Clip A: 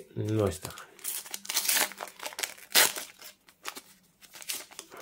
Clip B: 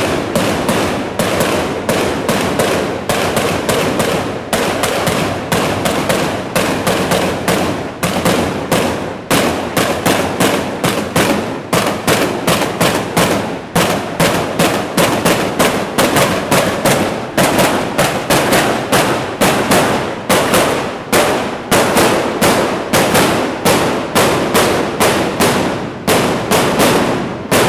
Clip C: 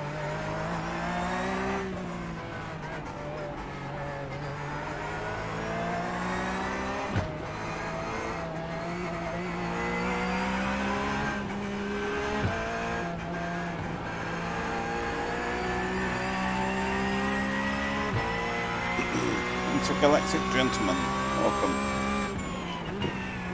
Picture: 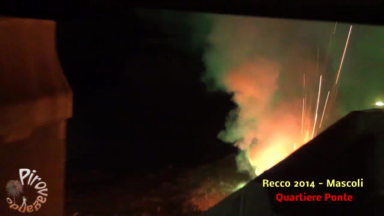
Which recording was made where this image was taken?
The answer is B